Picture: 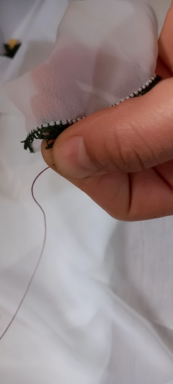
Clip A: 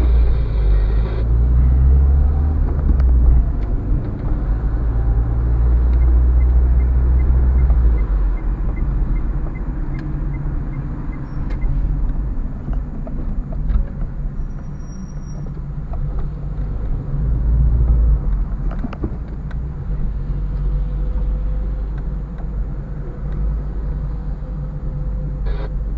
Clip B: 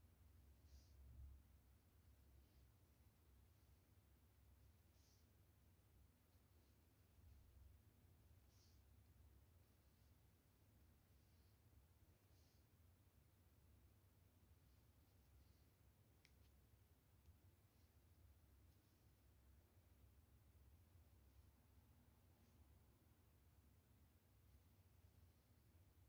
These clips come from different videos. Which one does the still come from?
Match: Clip B